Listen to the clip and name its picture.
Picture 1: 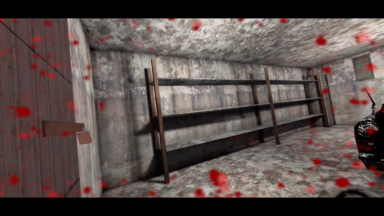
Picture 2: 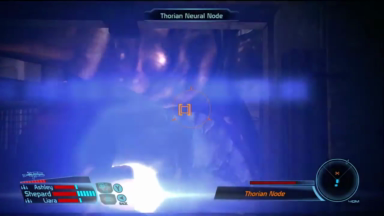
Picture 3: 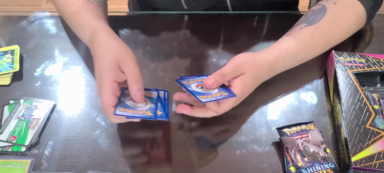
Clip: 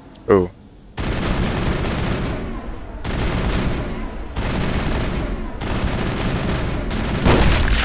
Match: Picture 2